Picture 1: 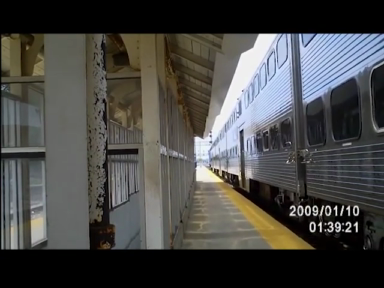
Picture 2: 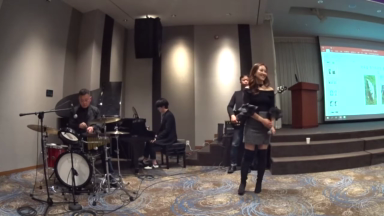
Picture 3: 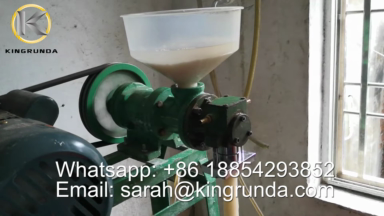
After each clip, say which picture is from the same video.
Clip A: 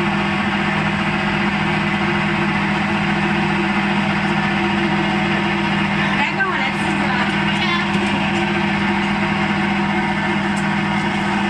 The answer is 3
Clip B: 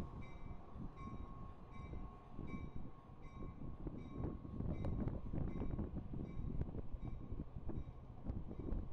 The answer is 1